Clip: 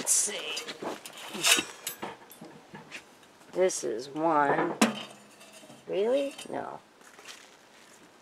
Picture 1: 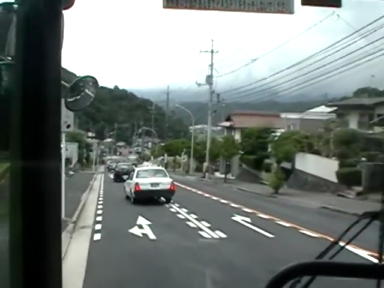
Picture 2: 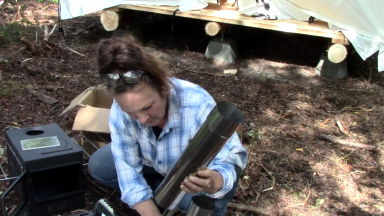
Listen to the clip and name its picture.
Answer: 2